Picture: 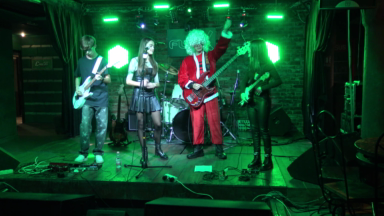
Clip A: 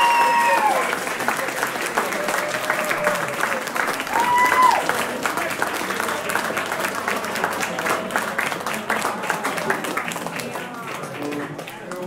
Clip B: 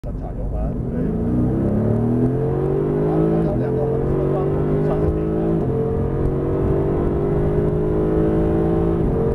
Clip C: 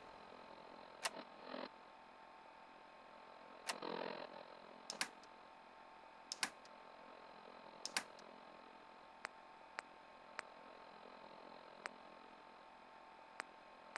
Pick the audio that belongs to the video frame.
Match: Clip A